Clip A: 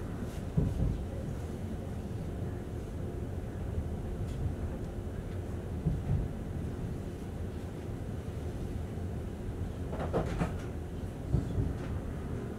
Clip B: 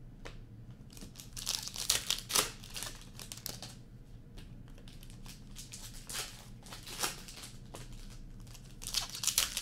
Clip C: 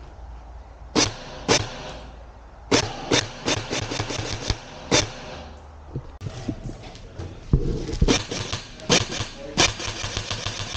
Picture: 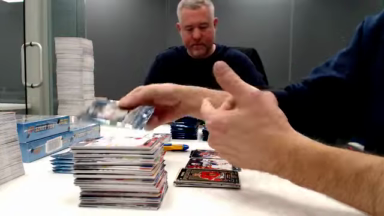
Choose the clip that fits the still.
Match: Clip B